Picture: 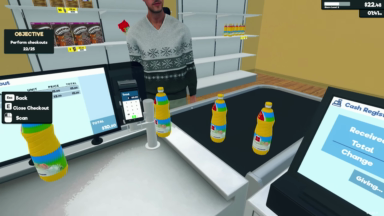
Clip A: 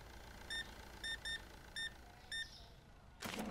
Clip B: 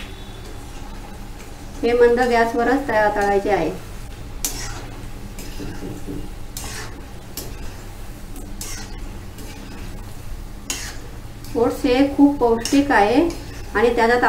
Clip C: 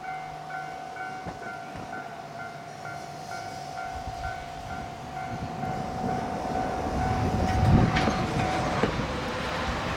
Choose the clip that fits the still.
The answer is A